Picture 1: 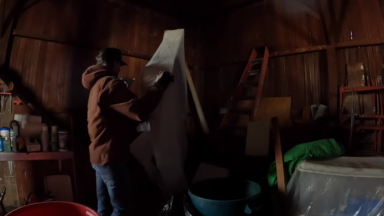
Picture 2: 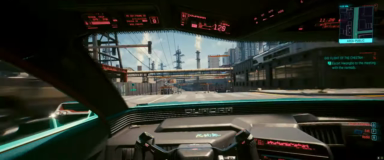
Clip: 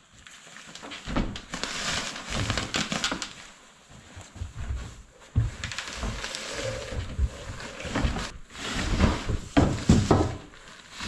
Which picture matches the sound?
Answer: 1